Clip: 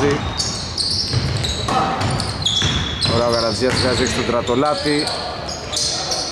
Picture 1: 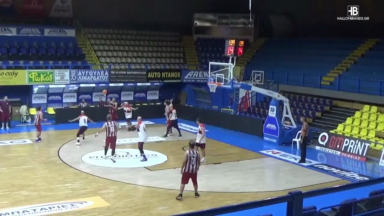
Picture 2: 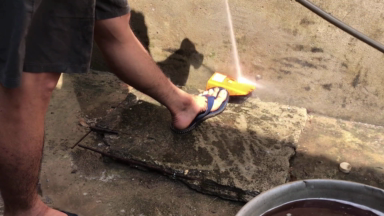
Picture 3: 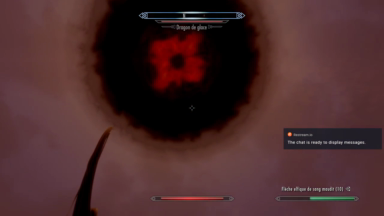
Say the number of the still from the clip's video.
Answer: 1